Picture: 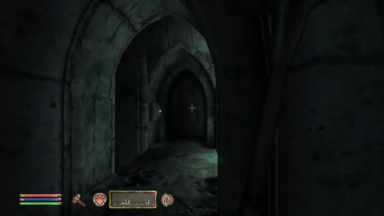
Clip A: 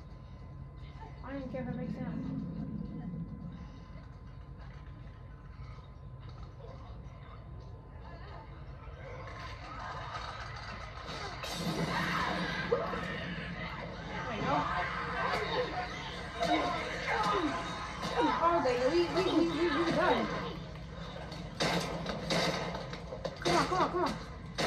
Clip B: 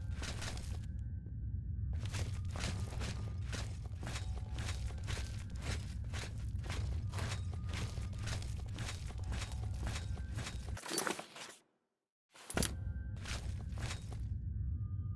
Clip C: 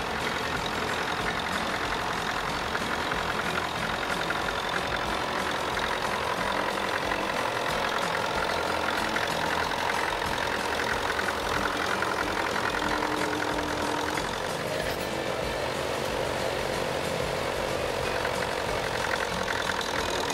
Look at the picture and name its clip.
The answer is B